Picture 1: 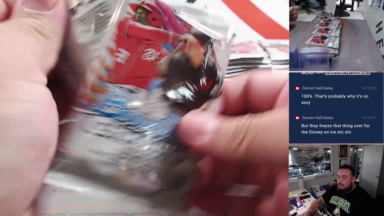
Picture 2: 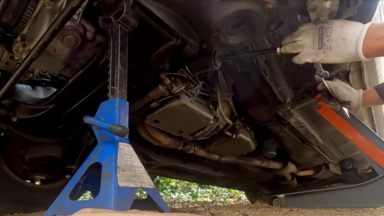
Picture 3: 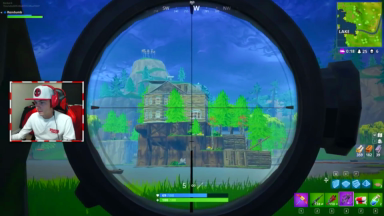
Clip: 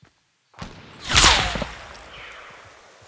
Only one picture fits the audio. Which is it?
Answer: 3